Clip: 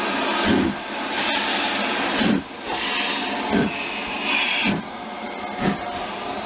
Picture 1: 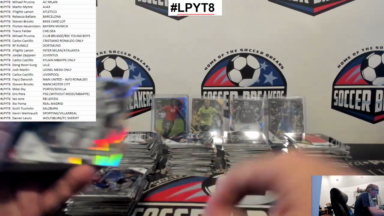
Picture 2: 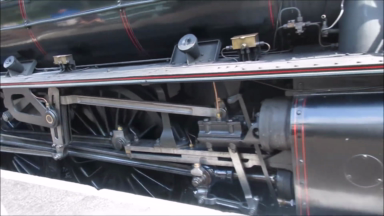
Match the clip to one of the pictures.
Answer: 2